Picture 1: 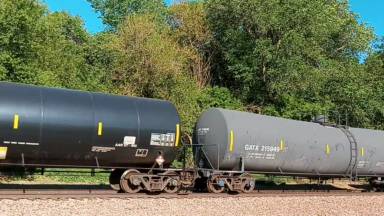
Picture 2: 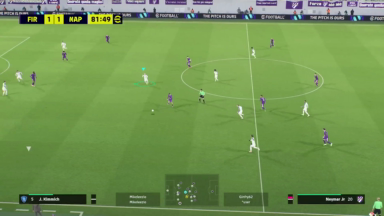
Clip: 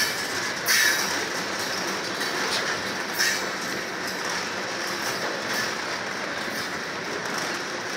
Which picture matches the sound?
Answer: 1